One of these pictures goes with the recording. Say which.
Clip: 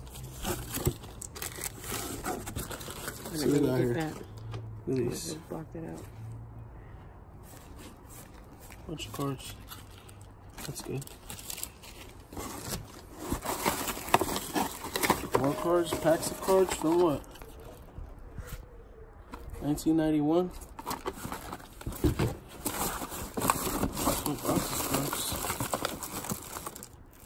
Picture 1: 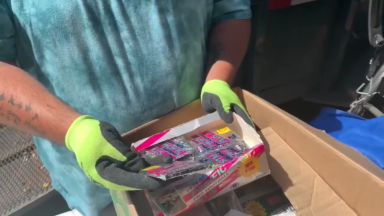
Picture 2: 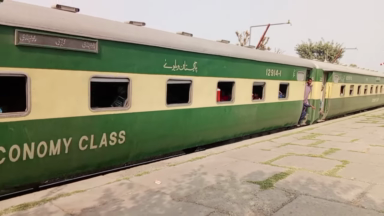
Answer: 1